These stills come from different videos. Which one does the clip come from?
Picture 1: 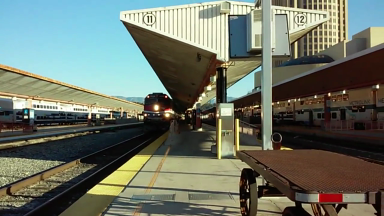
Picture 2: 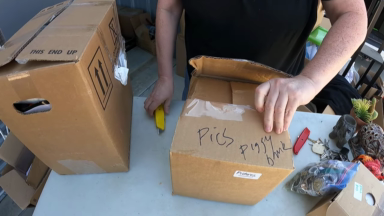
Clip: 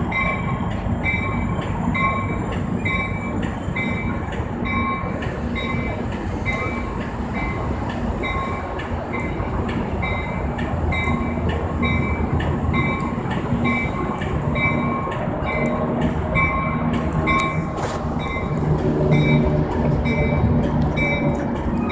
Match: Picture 1